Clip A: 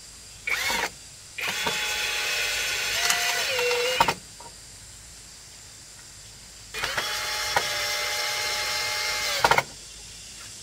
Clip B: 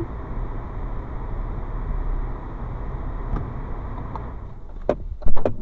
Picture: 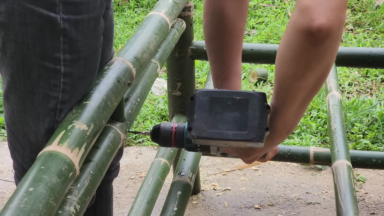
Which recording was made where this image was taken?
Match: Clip A